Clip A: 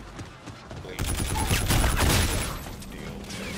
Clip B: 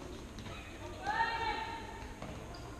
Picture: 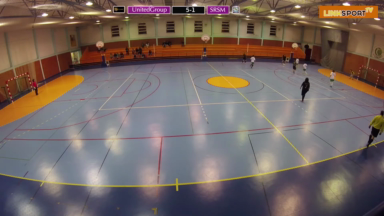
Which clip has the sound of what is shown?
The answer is B